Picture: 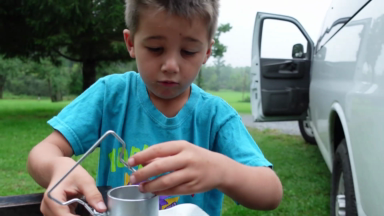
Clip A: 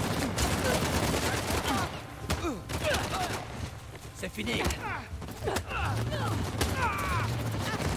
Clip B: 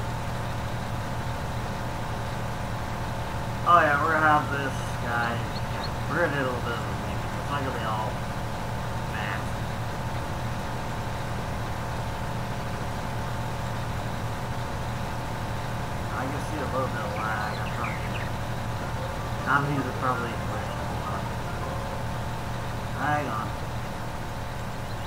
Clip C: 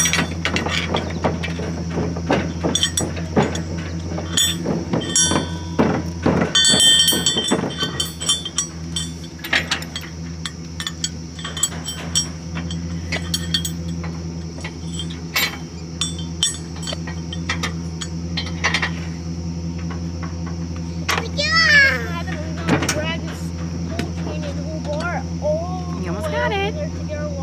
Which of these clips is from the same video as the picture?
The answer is C